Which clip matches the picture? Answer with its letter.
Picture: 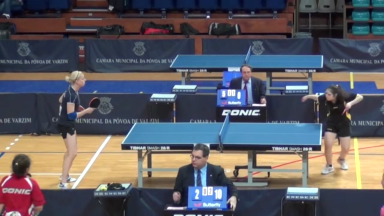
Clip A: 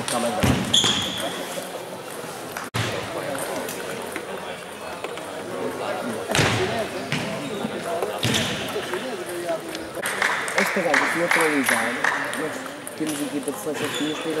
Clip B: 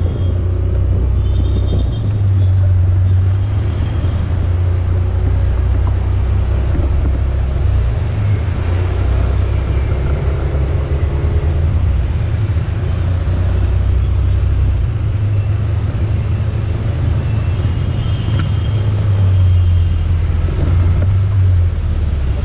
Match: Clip A